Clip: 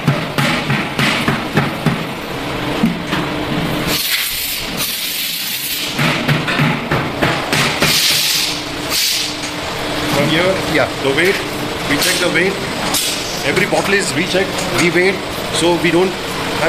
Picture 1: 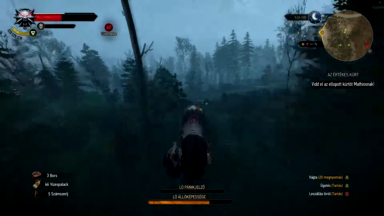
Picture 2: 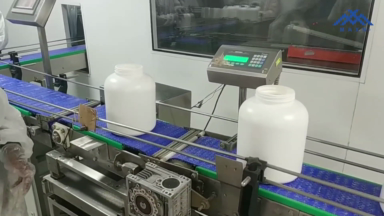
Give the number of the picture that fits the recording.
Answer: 2